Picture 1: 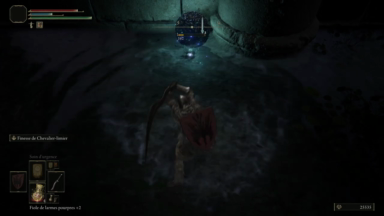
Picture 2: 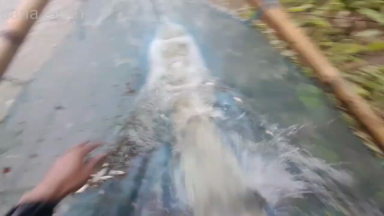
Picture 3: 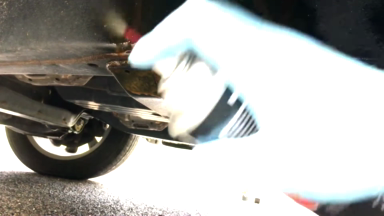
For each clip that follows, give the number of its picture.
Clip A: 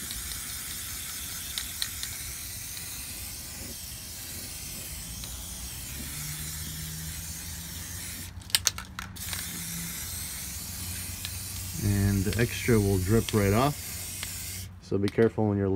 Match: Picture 3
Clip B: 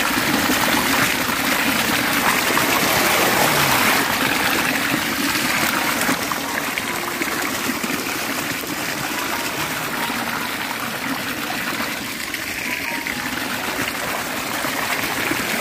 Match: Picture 2